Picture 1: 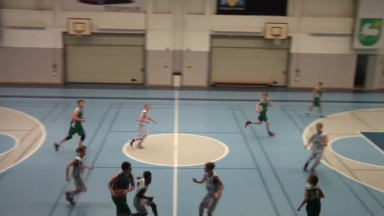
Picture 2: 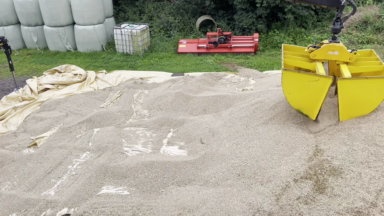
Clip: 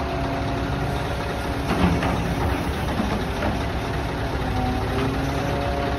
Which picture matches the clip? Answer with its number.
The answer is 2